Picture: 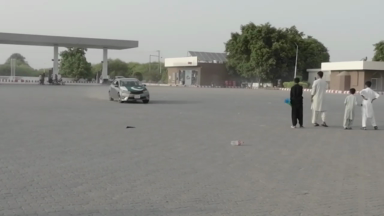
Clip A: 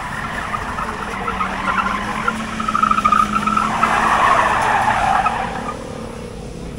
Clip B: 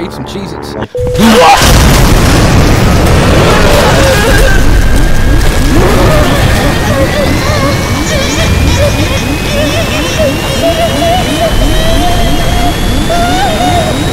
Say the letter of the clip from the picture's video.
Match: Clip A